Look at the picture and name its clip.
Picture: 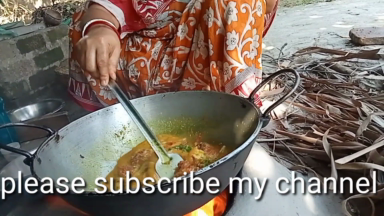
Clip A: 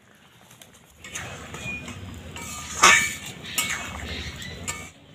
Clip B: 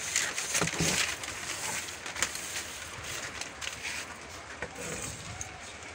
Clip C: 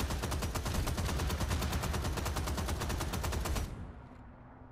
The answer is A